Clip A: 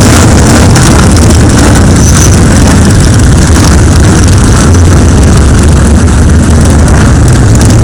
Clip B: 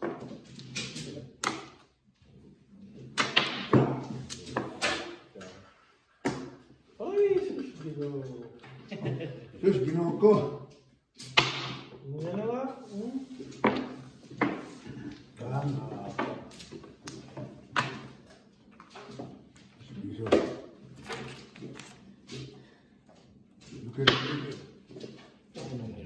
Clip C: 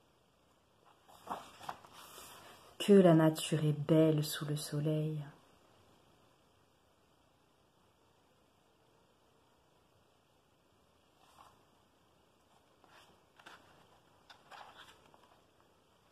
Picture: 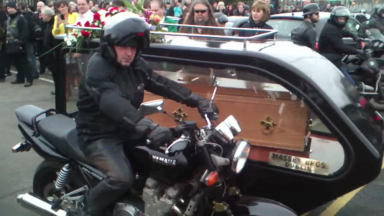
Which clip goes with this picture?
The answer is A